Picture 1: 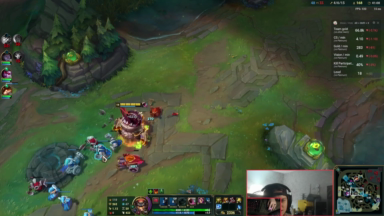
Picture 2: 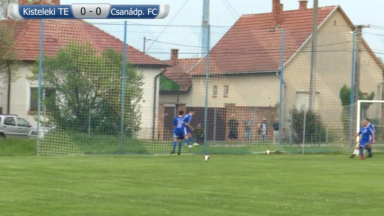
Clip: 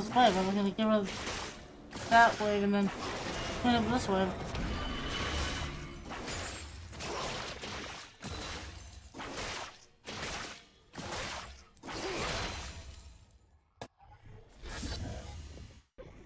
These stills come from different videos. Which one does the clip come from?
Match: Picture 1